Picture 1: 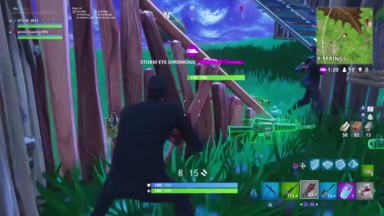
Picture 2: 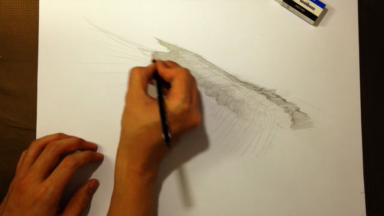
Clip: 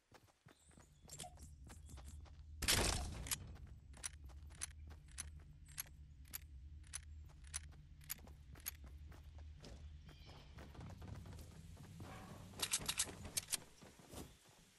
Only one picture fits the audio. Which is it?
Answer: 1